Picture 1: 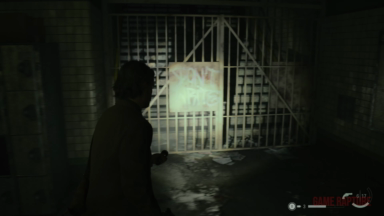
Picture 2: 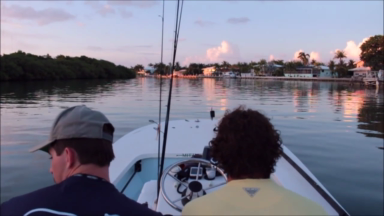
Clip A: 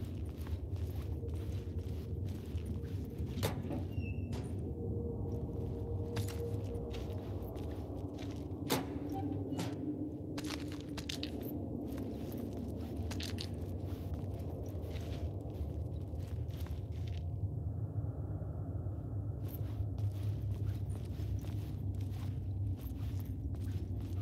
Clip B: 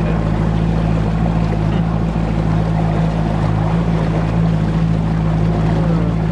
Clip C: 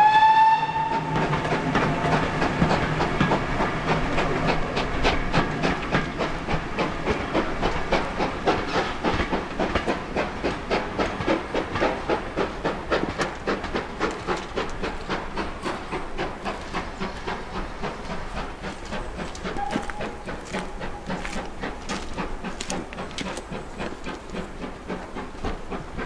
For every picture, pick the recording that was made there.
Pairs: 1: A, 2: B